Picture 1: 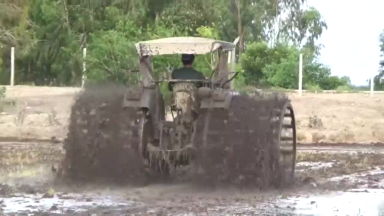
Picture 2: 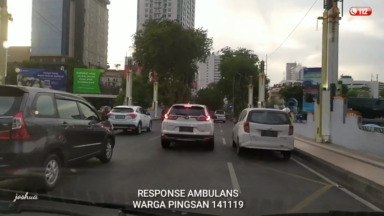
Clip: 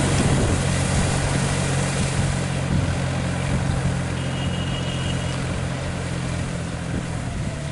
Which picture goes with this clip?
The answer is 1